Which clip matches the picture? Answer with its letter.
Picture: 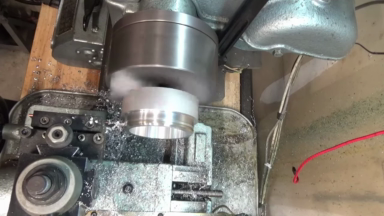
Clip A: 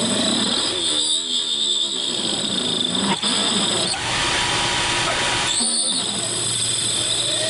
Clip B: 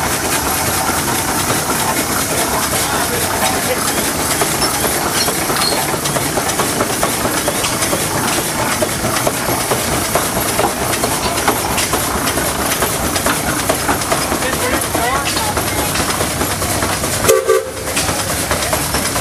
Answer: A